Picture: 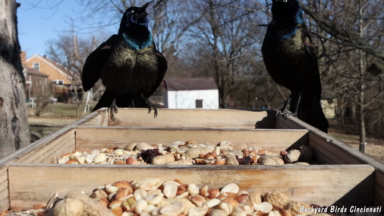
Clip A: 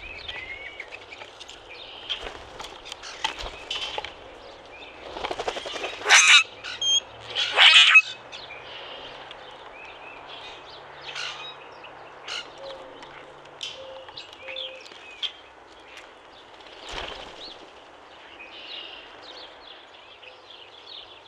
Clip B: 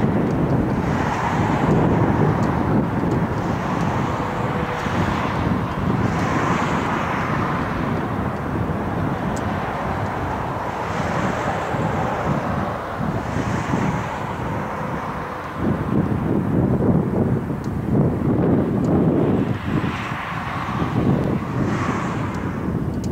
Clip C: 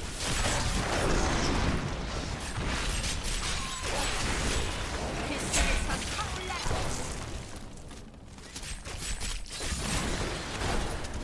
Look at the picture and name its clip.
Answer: A